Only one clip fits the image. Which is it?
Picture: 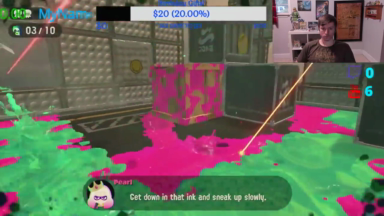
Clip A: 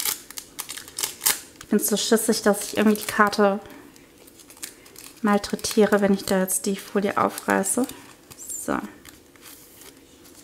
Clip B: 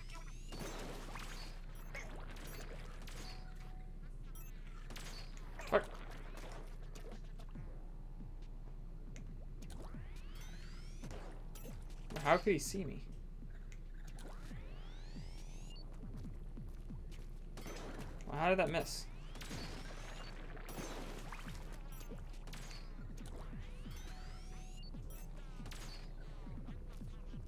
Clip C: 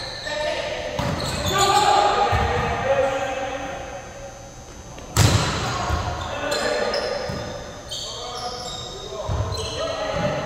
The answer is B